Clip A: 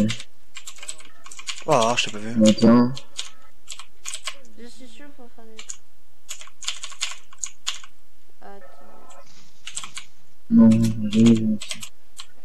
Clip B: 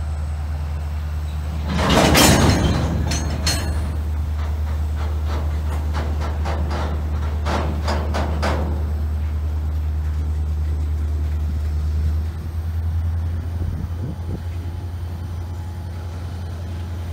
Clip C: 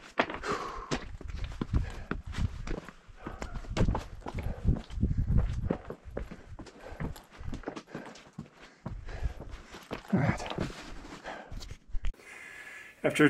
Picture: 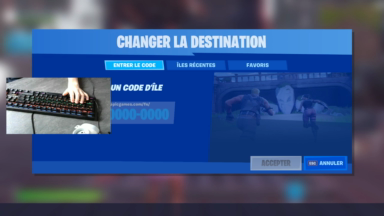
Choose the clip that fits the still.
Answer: A